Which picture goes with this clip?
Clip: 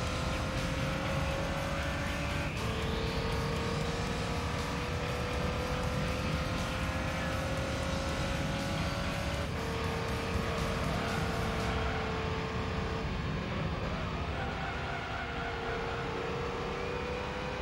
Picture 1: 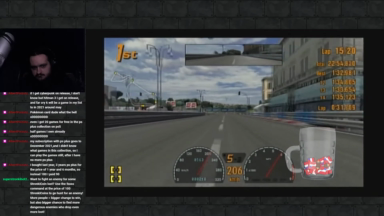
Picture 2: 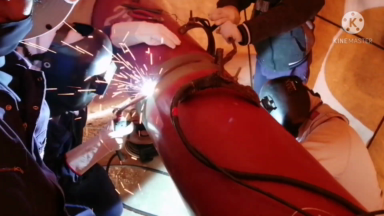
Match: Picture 1